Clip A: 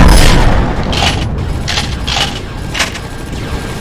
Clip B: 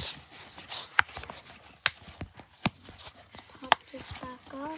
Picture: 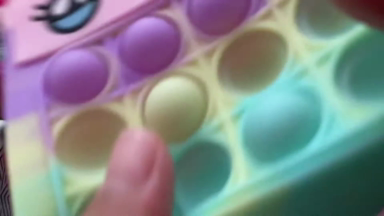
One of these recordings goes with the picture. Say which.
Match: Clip B